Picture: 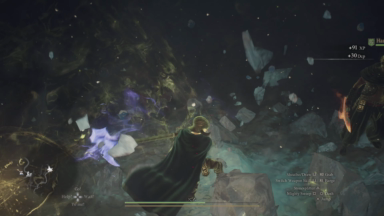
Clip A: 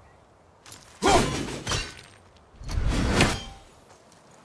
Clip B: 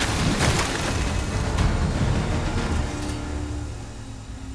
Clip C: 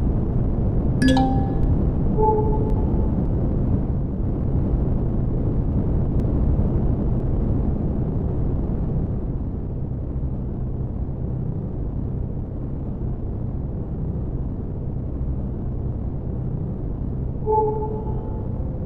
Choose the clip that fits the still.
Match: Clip B